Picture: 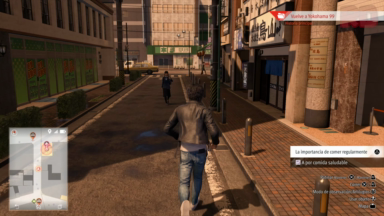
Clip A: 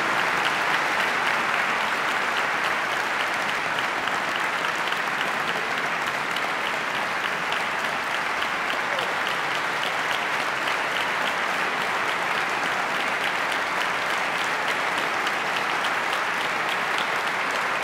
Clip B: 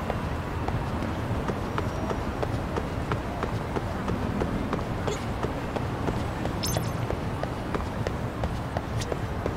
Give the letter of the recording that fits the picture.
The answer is B